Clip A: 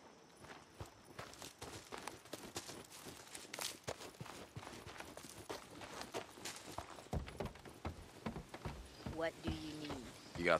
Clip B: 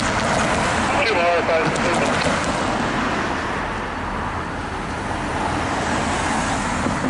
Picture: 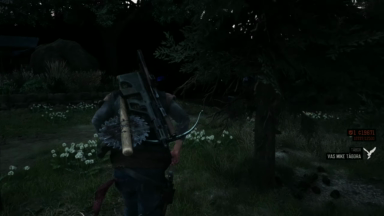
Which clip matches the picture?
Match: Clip A